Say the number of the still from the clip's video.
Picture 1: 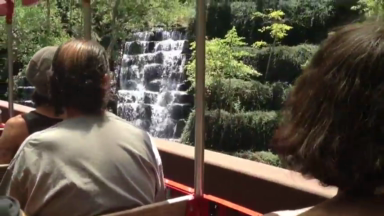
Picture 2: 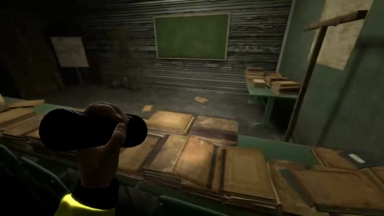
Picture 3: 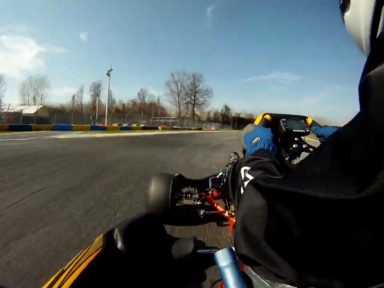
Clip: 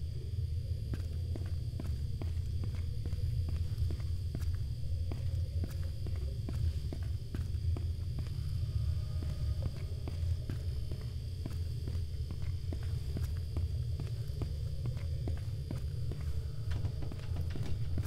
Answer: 2